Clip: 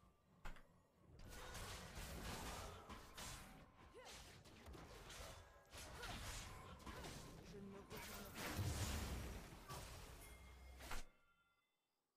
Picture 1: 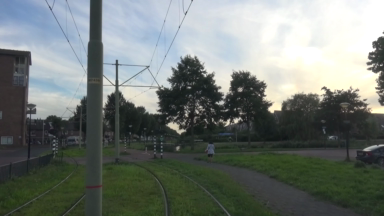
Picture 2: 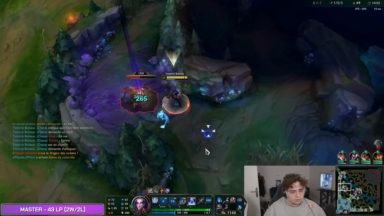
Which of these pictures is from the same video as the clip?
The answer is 2